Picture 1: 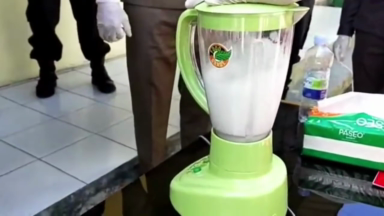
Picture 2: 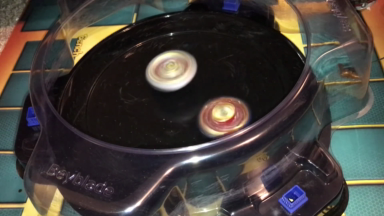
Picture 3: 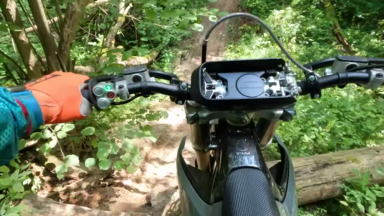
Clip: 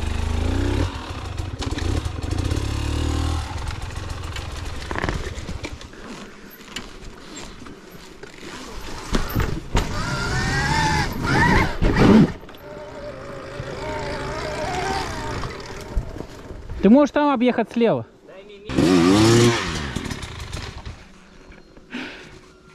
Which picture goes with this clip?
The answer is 3